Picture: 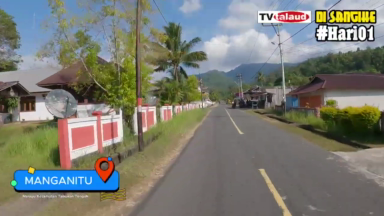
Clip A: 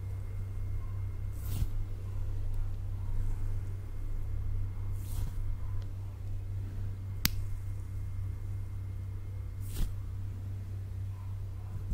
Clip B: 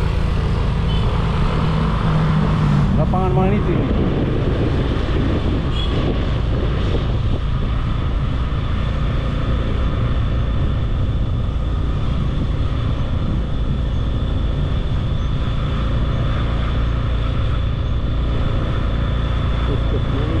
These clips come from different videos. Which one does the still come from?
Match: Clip B